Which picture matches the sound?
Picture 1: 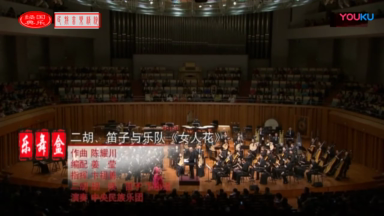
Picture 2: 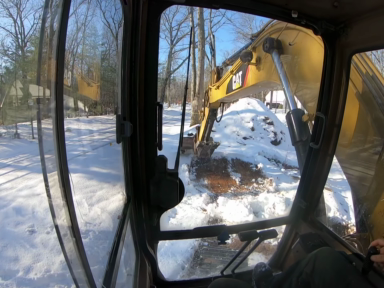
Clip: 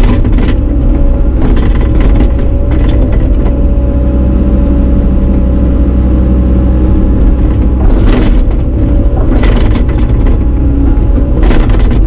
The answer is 2